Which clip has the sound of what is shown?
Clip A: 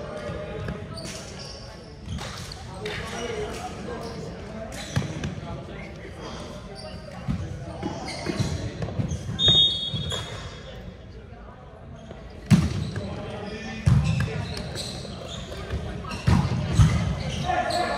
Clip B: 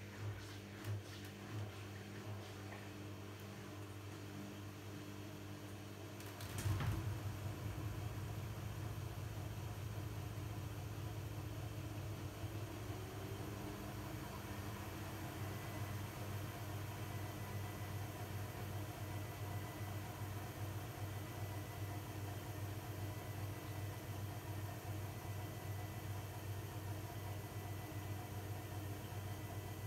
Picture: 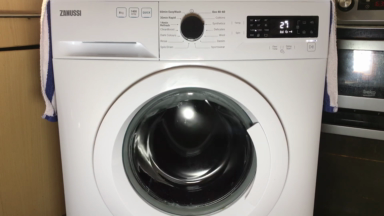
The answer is B